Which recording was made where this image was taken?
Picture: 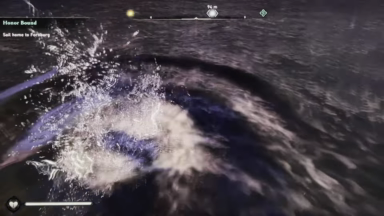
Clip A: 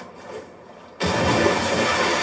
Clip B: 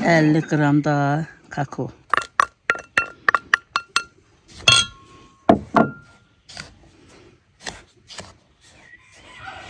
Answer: A